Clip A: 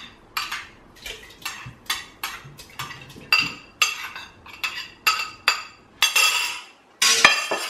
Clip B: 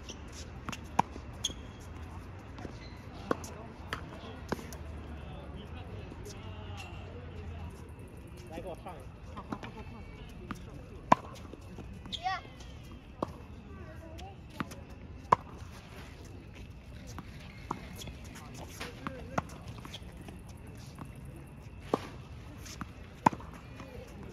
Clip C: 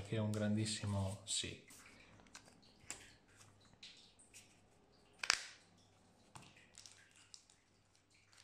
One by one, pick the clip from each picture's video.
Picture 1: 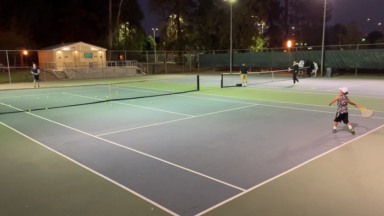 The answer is B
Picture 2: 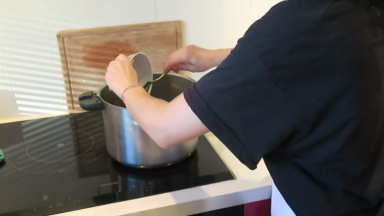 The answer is A